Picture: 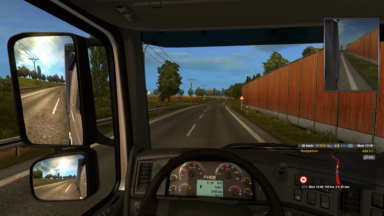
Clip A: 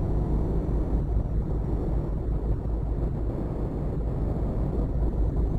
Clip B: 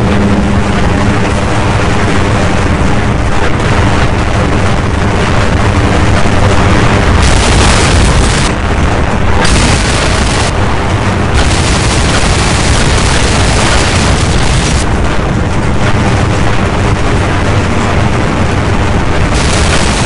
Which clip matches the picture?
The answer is A